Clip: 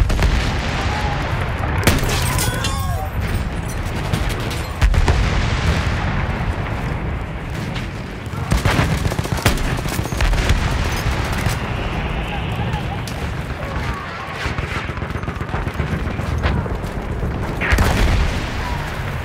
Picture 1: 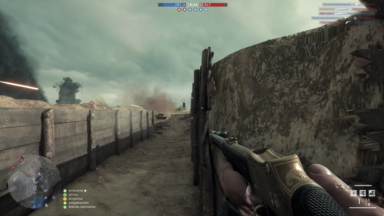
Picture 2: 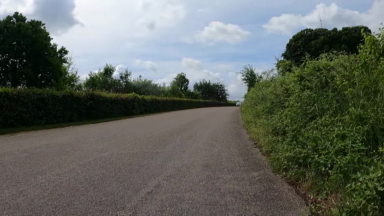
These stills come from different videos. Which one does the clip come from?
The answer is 1